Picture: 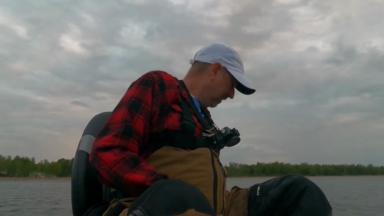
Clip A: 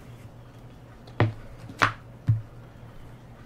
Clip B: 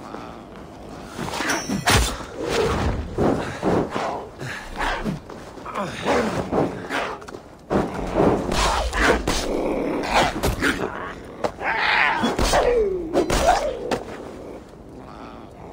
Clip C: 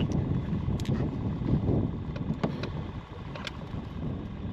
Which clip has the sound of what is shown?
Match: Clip C